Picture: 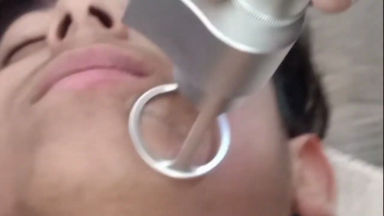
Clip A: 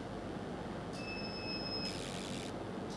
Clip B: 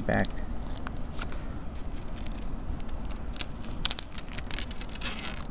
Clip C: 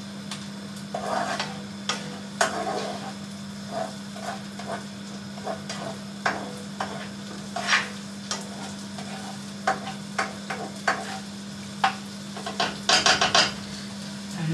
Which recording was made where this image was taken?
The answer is A